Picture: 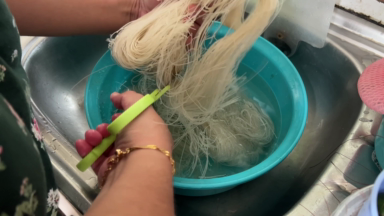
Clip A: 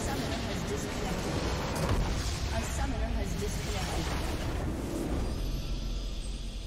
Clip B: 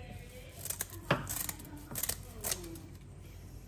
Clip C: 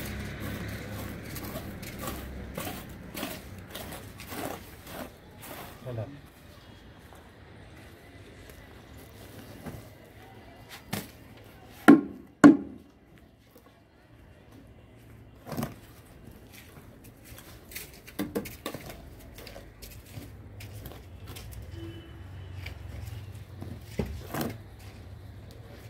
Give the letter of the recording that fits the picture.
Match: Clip B